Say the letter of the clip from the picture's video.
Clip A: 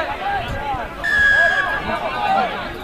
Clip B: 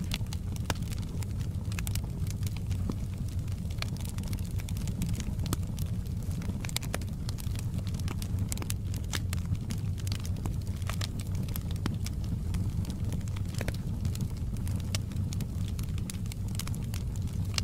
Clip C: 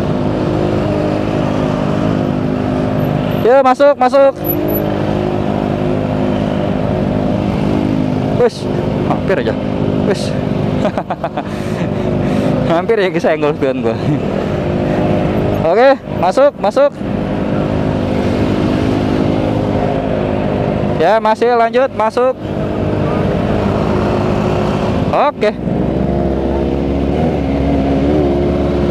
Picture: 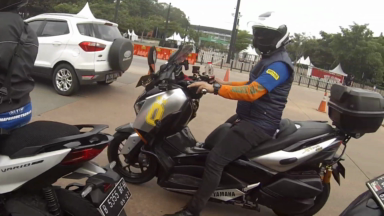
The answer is C